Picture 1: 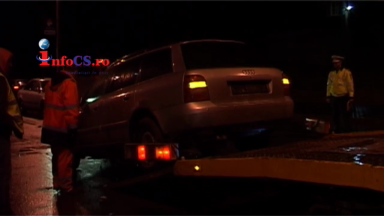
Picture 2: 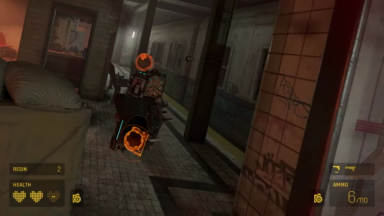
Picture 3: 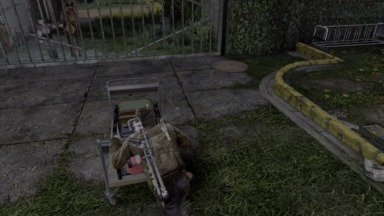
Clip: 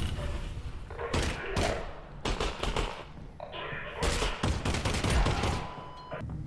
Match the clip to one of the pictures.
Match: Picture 2